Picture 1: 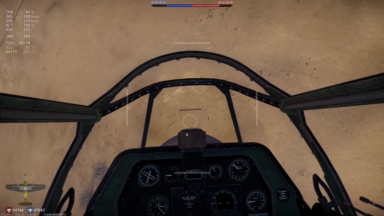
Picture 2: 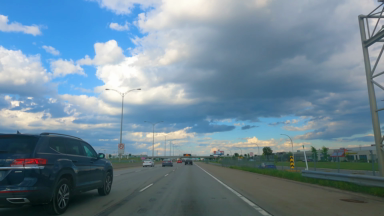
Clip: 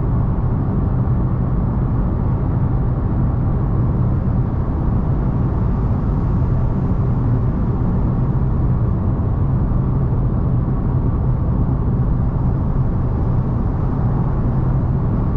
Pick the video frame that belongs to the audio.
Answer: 2